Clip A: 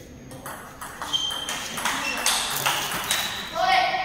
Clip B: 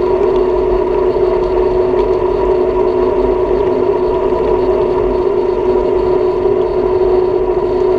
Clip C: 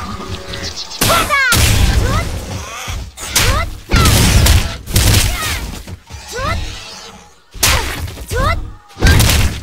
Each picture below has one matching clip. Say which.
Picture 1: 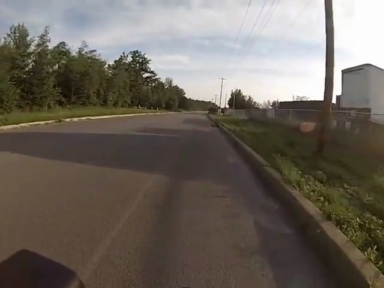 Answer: B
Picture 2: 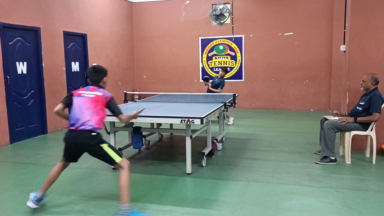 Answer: A